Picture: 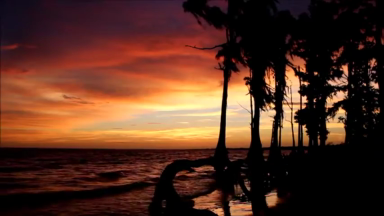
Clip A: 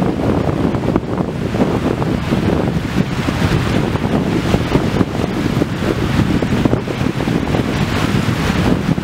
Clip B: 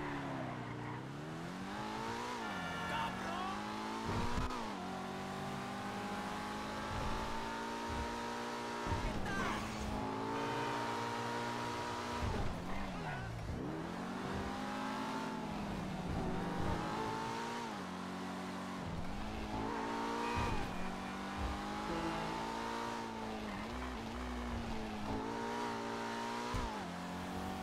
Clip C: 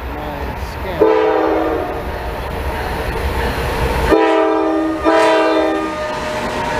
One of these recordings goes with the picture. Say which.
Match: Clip A